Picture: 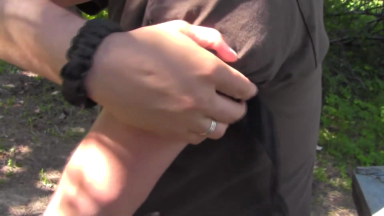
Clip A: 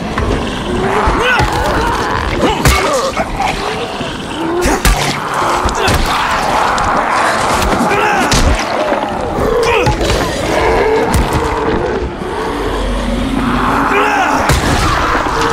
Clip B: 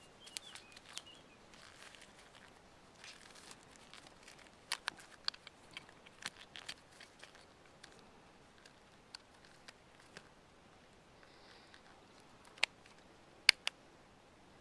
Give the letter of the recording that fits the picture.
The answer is B